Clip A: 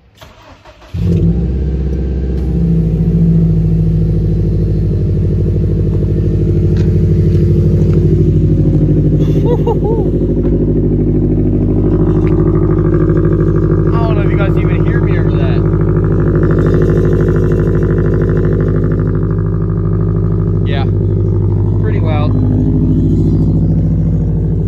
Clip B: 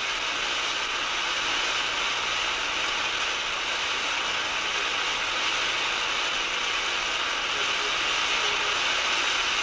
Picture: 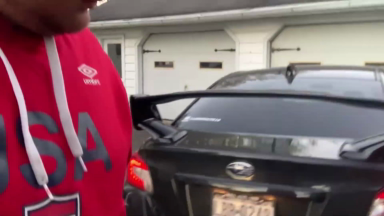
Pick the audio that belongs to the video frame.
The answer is A